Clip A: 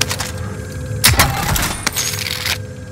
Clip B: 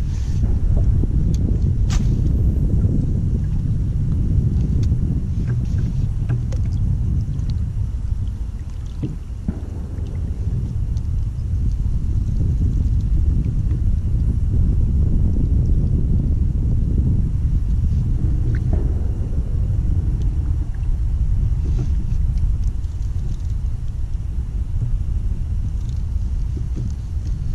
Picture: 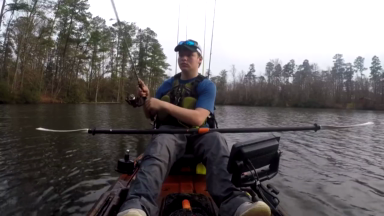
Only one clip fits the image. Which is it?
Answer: B